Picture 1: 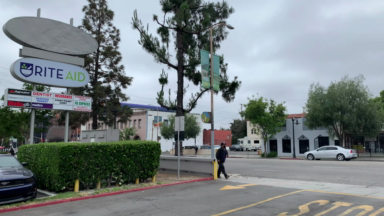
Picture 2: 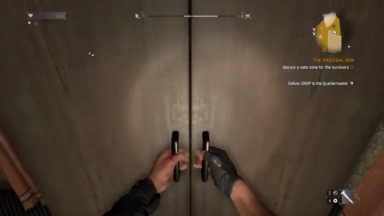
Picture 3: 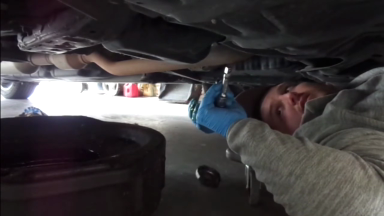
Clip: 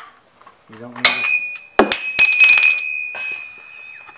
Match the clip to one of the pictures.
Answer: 3